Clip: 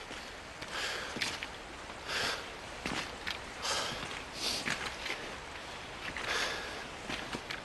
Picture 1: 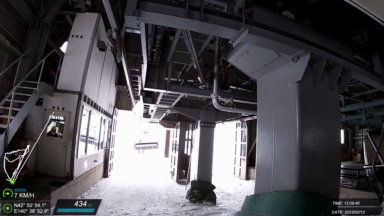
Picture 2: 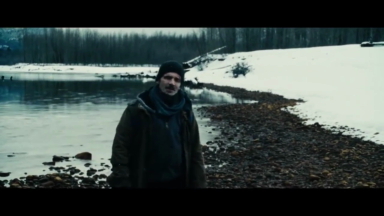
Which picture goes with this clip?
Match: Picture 2